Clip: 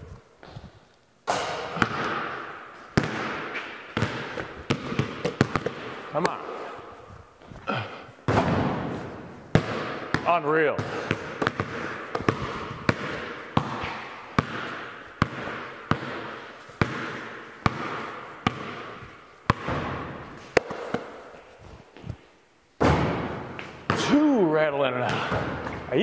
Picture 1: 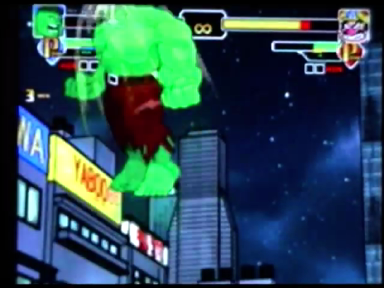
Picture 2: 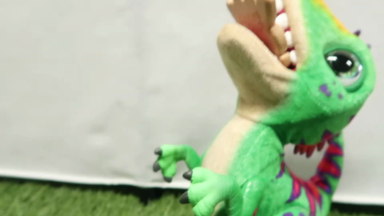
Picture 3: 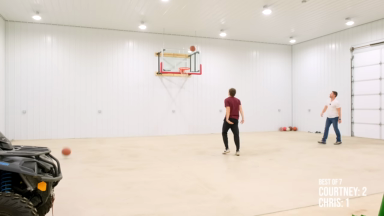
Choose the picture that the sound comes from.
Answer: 3